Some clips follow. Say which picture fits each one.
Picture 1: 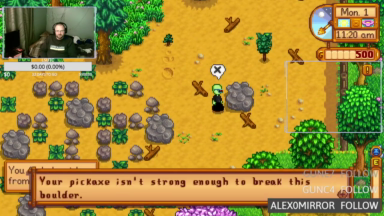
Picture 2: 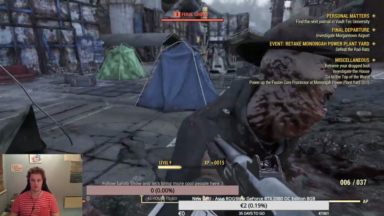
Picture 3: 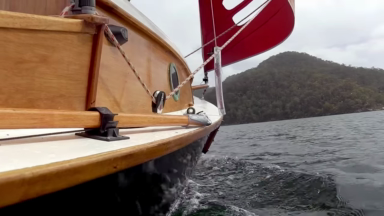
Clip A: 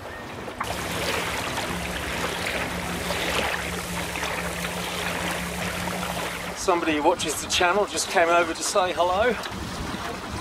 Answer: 3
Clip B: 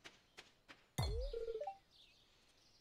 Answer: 1